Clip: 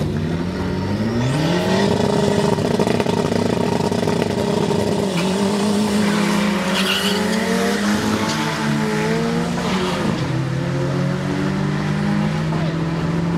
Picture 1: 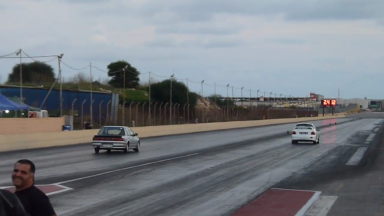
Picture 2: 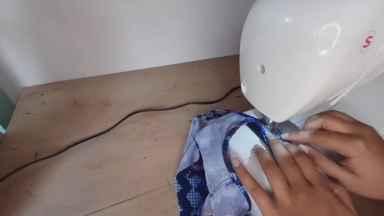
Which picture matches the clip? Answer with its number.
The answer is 1